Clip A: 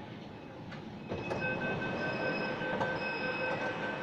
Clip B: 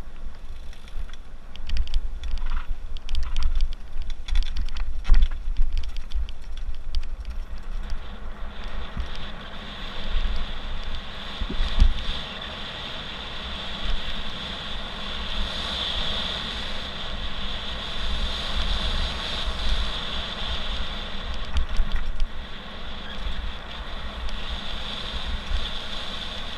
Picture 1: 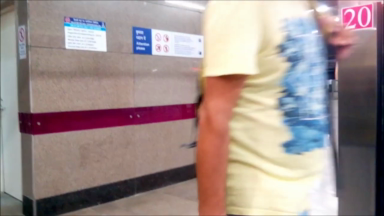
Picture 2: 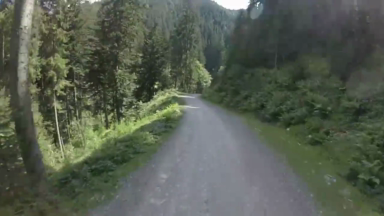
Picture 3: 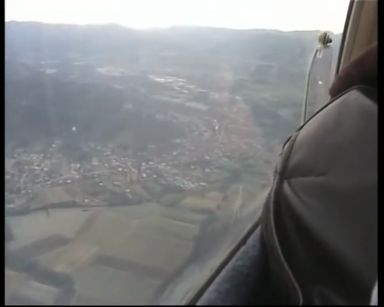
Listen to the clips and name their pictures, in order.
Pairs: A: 1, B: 2